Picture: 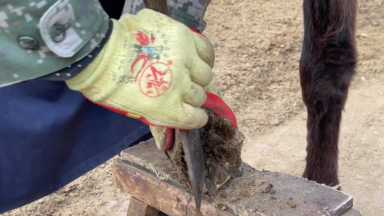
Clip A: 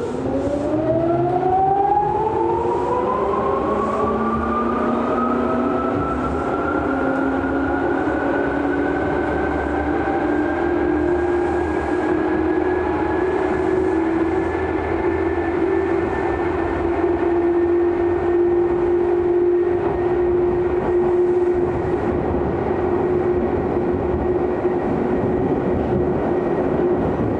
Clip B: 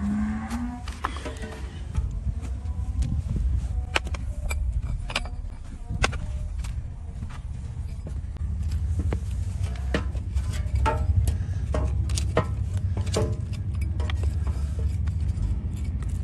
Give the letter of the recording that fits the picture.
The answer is B